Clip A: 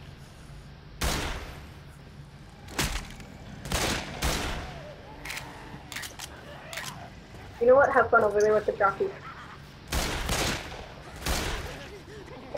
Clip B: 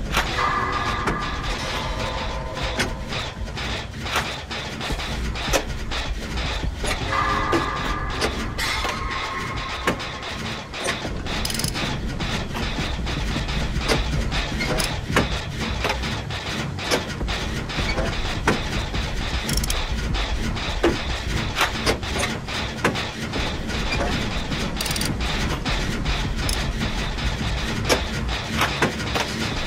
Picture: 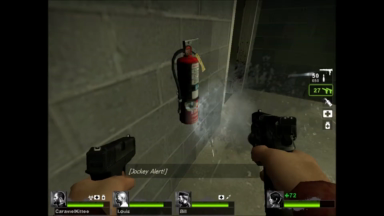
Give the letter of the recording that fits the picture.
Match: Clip A